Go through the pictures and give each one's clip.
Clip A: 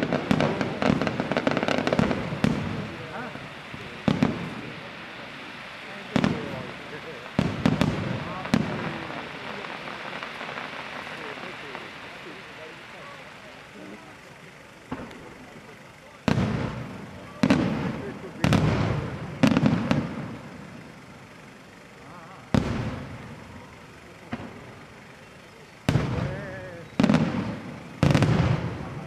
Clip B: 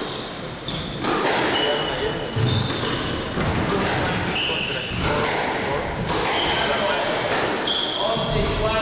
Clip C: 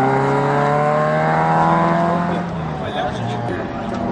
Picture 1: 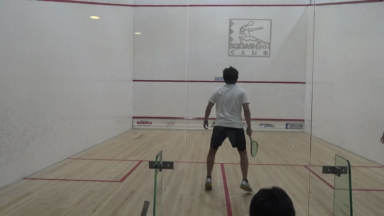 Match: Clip B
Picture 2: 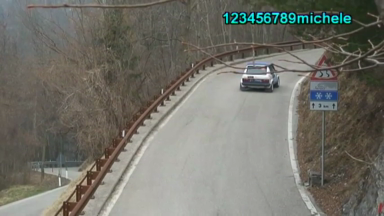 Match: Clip C